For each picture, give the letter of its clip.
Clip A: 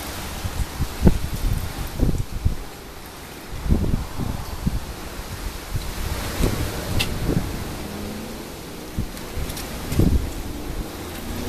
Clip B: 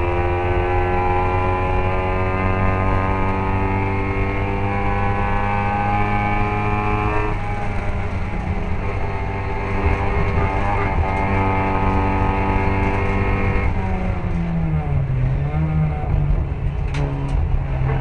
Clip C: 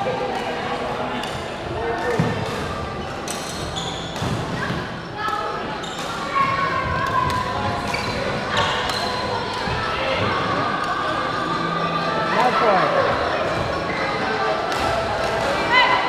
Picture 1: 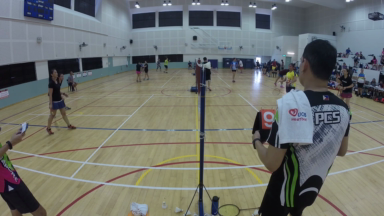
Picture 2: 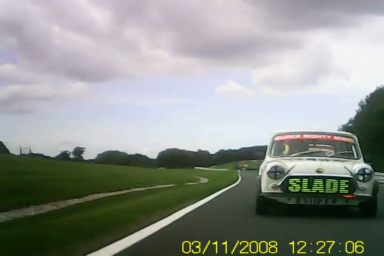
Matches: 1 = C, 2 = B